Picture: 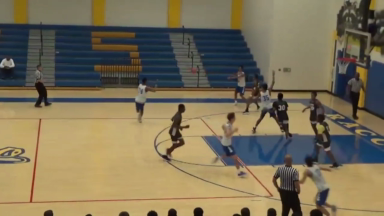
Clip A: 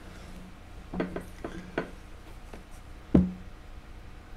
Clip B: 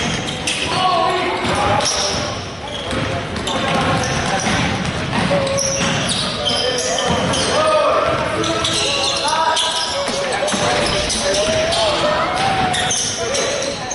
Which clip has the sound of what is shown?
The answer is B